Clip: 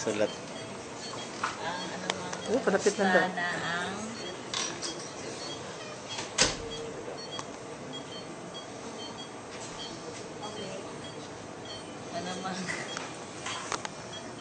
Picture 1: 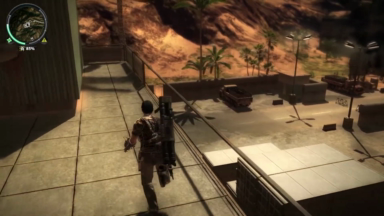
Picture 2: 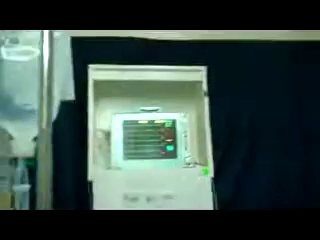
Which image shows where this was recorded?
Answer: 2